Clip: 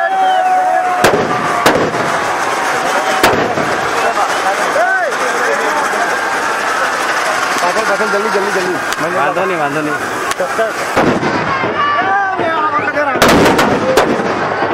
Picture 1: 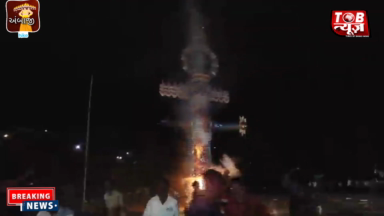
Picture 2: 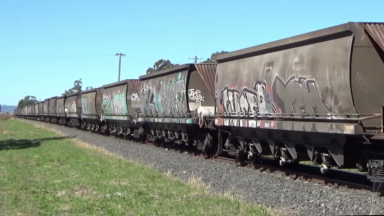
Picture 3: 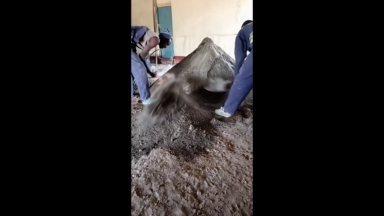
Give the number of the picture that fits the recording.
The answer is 1